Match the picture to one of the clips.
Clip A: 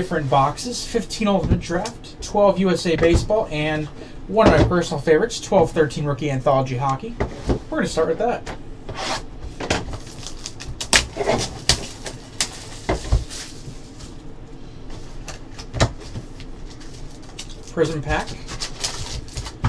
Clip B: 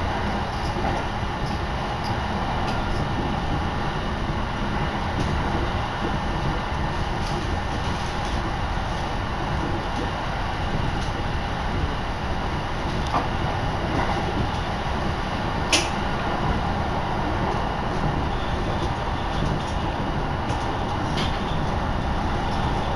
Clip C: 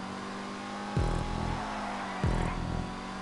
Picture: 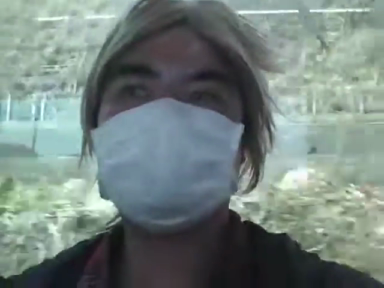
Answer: B